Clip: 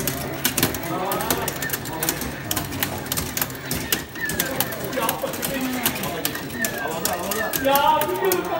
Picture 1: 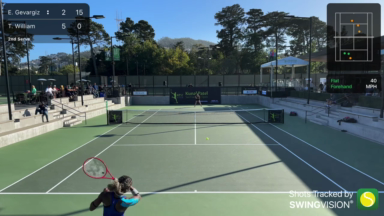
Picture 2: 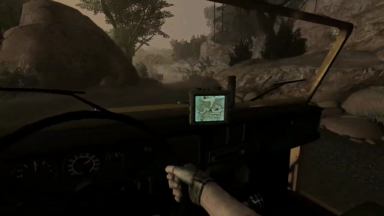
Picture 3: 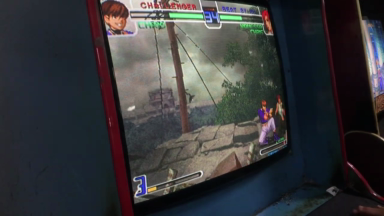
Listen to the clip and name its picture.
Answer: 3